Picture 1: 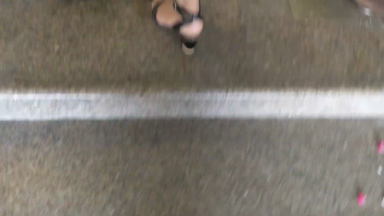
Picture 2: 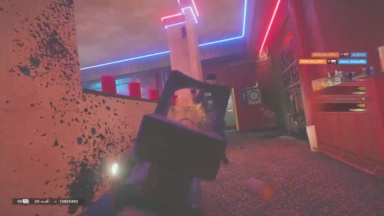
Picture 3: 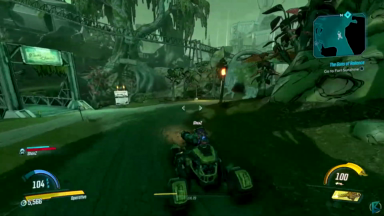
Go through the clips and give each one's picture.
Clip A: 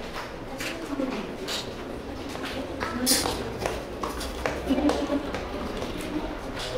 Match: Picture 1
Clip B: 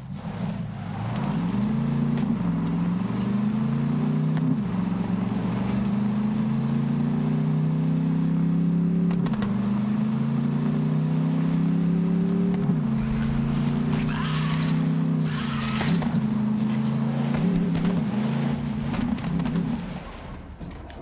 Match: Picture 3